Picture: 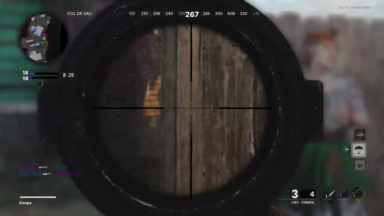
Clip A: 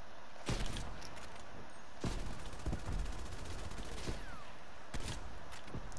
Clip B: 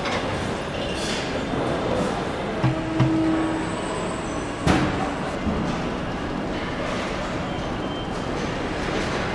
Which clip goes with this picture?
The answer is A